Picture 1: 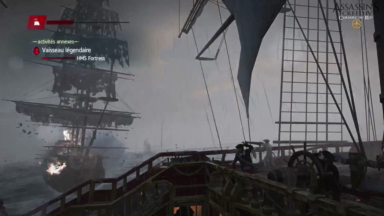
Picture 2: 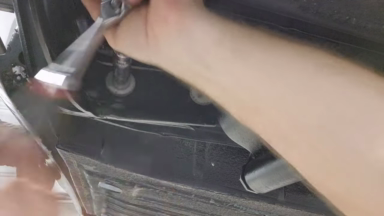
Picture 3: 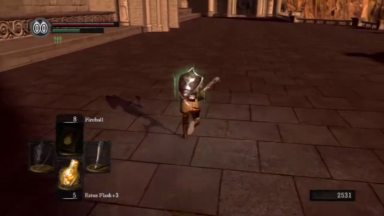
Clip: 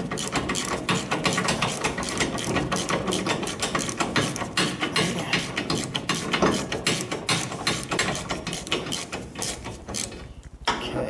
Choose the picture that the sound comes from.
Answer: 2